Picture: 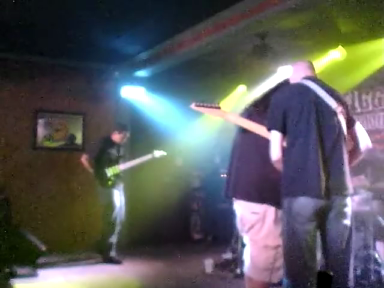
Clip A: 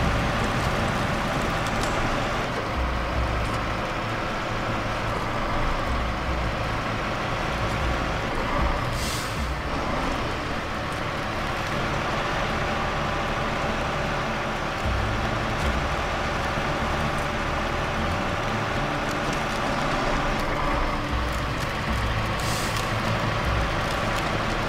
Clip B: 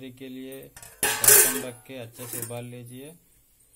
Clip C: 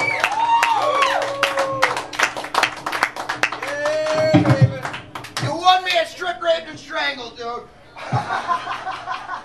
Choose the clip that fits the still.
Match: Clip C